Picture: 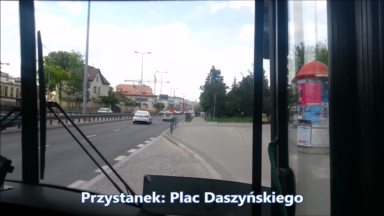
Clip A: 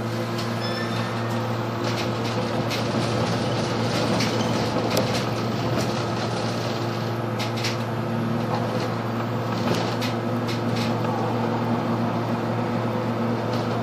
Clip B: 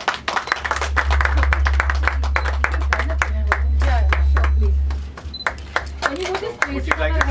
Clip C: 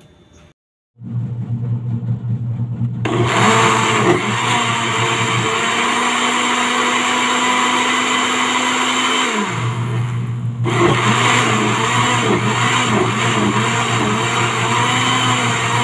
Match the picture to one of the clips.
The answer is A